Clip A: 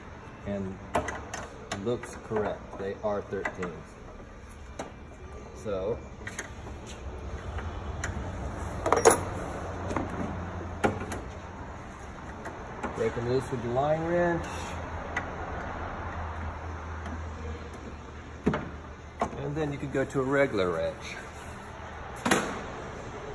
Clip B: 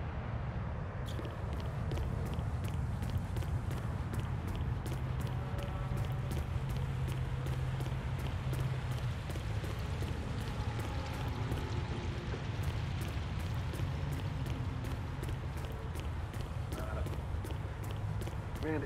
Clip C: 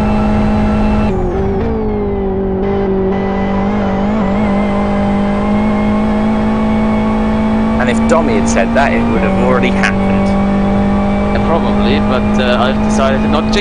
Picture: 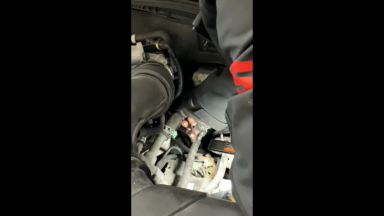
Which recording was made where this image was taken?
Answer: A